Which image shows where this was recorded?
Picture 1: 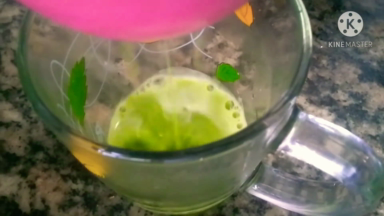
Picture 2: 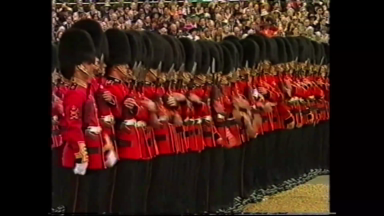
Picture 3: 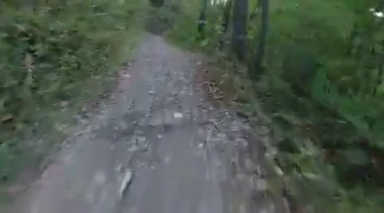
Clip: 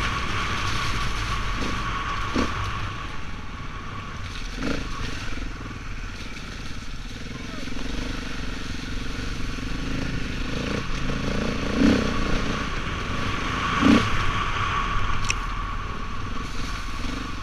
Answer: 3